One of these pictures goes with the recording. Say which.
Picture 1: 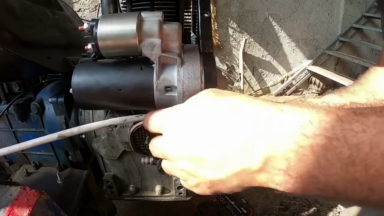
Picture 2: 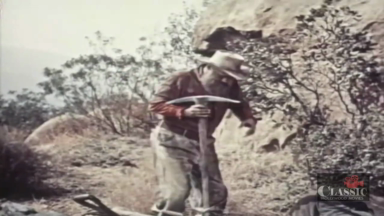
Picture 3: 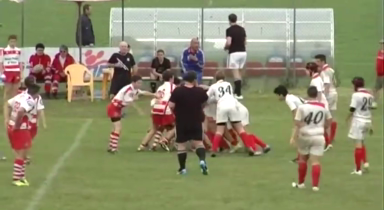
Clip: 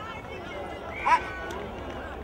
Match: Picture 3